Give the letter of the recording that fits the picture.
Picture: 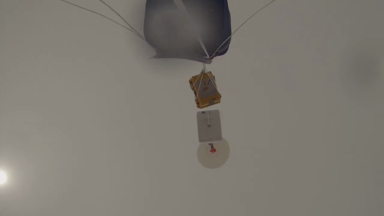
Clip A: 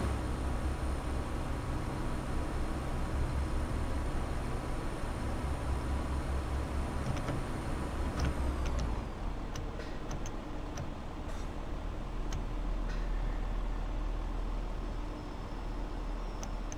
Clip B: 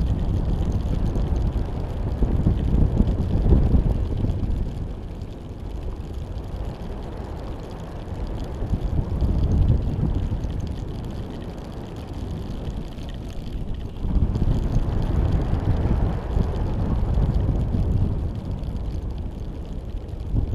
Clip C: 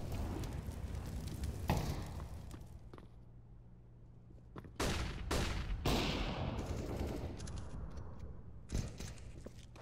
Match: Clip B